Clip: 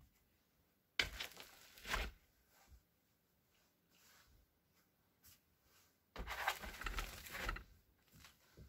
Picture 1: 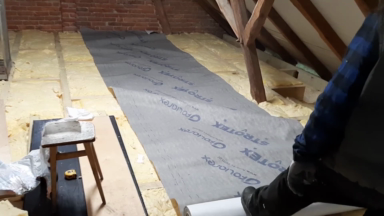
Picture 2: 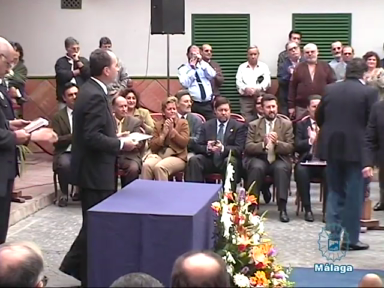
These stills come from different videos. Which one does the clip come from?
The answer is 1